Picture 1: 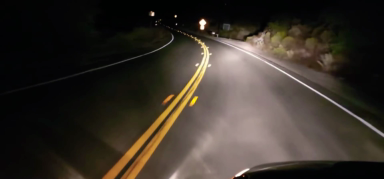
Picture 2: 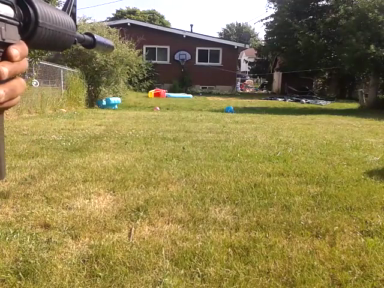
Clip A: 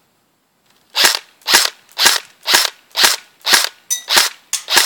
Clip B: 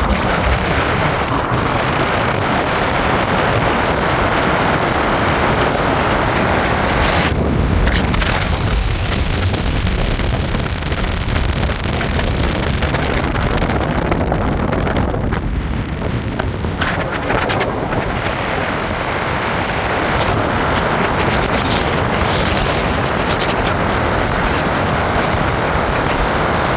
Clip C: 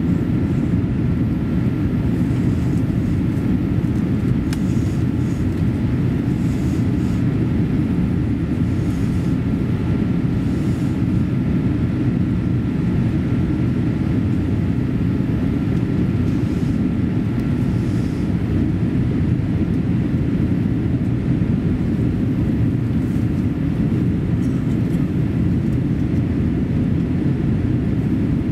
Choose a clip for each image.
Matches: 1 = B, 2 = A